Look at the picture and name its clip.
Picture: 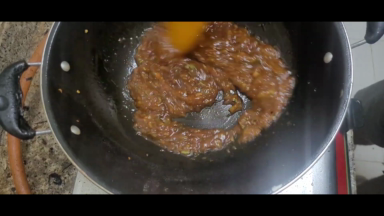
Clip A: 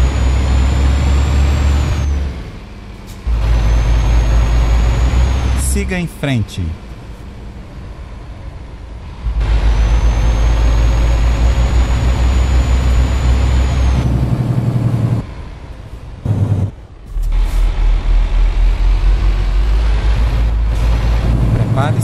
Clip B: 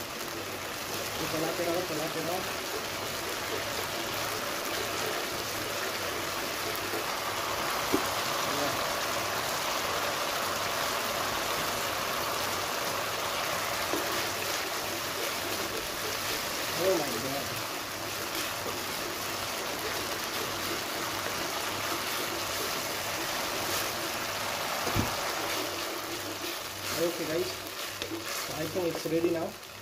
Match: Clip B